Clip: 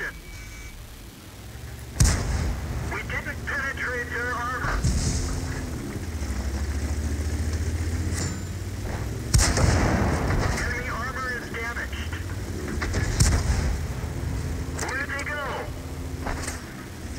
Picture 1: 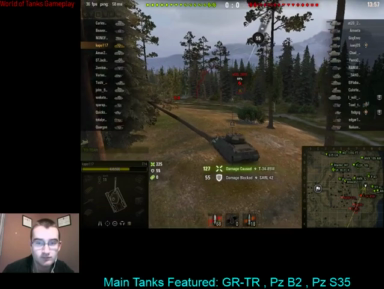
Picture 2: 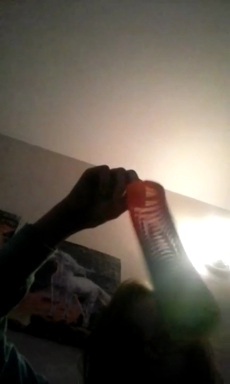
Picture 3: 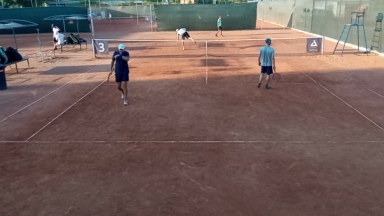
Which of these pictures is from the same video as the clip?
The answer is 1